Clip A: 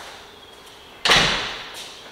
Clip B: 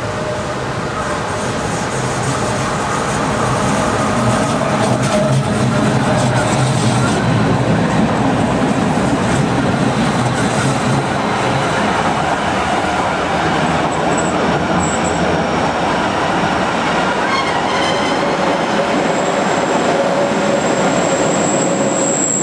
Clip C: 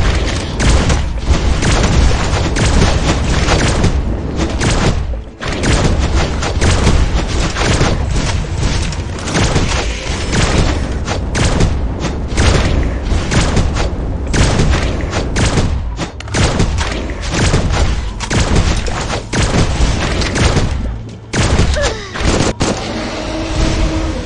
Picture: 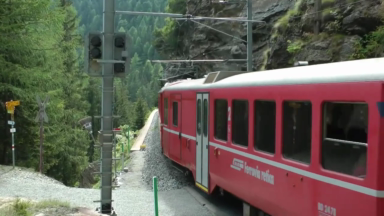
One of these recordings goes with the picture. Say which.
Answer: B